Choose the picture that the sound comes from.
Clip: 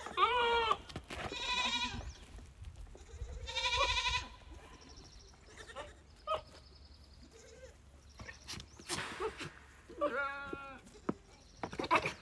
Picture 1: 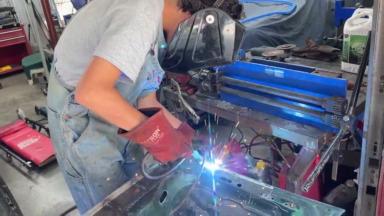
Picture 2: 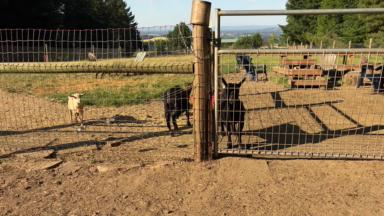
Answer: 2